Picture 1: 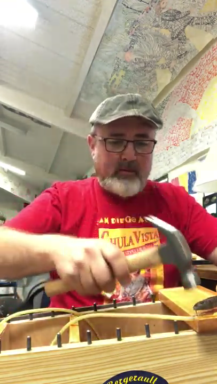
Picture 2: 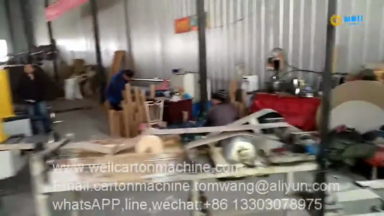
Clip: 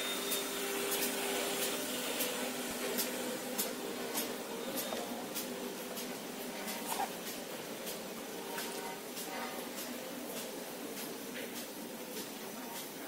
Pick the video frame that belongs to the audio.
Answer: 2